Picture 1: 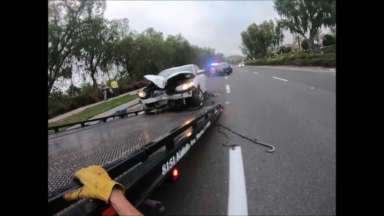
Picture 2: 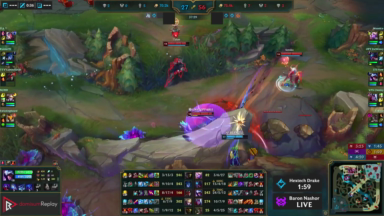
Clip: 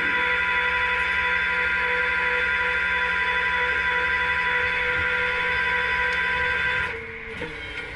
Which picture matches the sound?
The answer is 1